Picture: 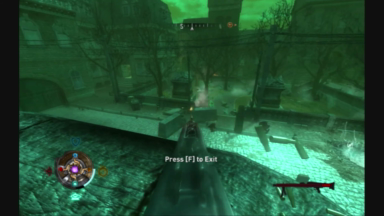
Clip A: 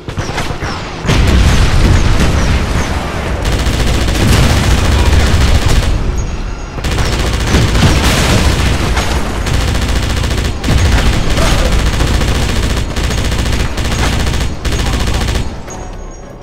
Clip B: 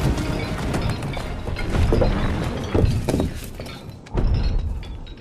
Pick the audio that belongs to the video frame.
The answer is A